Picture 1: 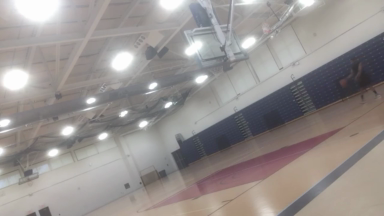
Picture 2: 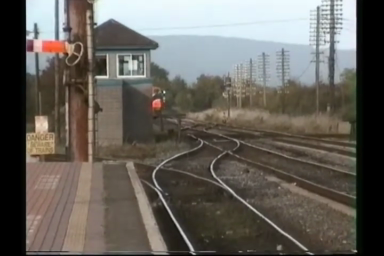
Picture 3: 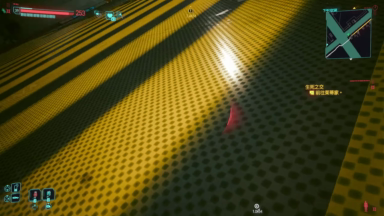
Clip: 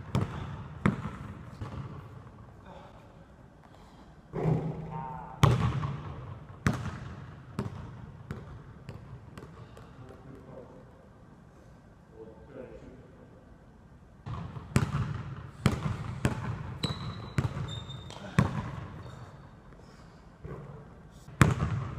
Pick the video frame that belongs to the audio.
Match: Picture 1